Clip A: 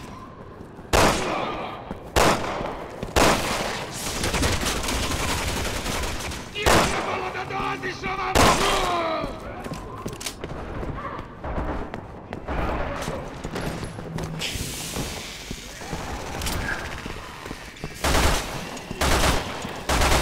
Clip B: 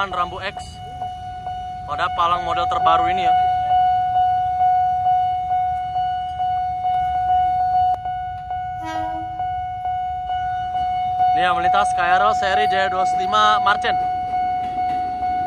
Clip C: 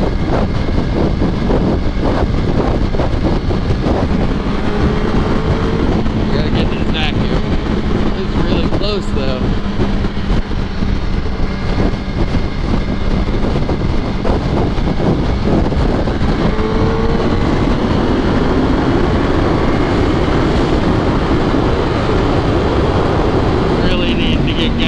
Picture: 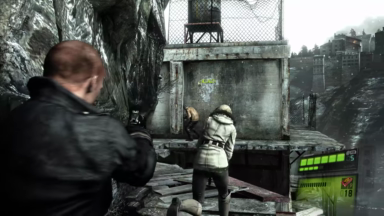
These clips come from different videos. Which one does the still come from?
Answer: A